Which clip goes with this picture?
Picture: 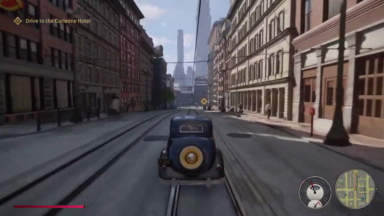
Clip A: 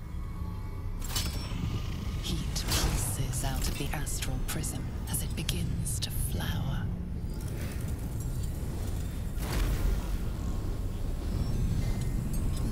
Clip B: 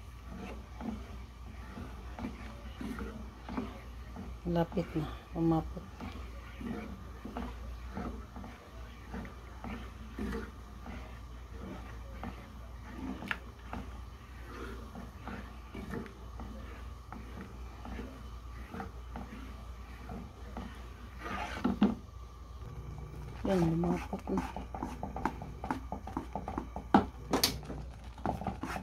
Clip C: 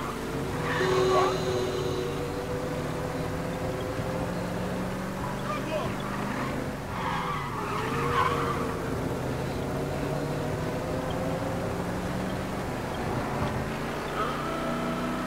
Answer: C